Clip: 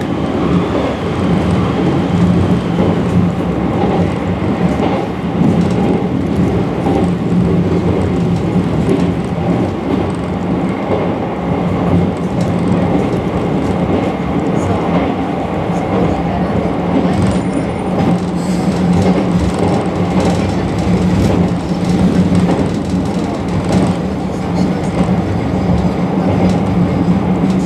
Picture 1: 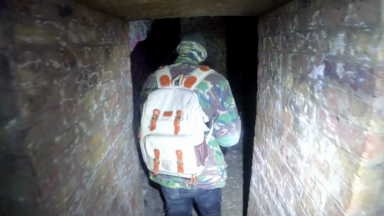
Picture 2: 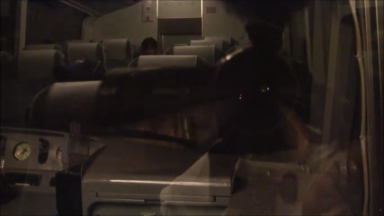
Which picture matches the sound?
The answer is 2